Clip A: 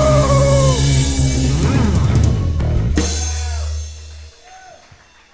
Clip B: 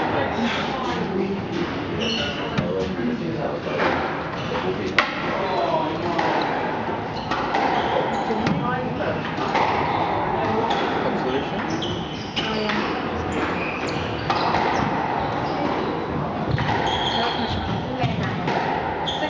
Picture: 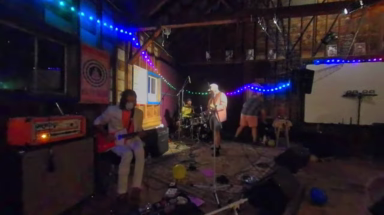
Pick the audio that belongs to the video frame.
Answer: A